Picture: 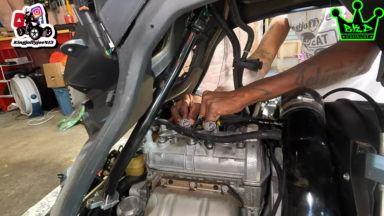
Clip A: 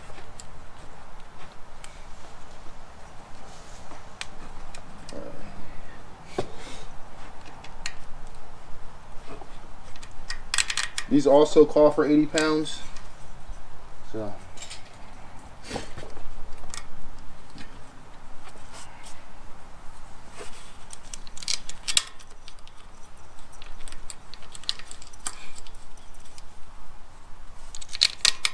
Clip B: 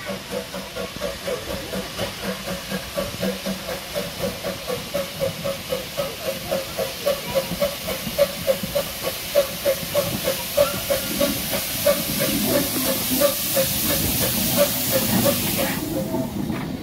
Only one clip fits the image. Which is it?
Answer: A